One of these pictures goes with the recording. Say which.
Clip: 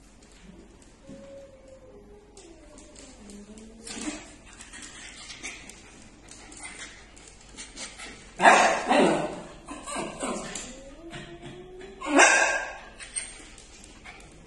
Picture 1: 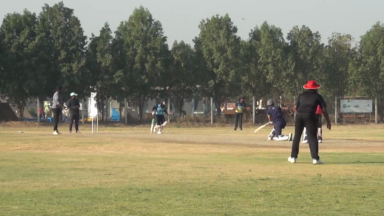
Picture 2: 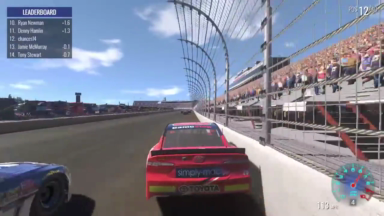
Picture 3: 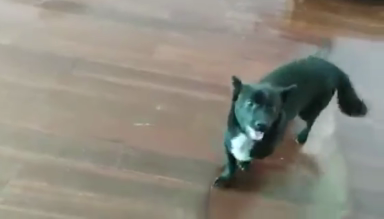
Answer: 3